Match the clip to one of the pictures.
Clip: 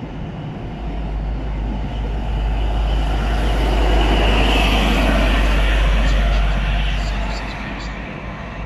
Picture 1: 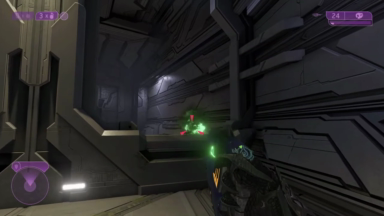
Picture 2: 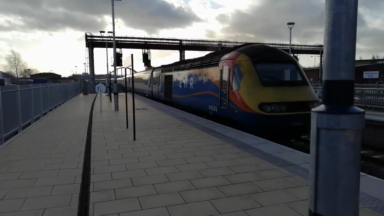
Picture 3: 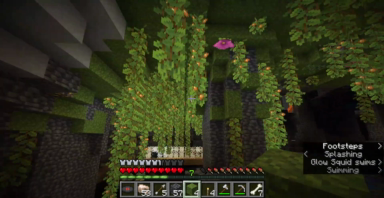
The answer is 2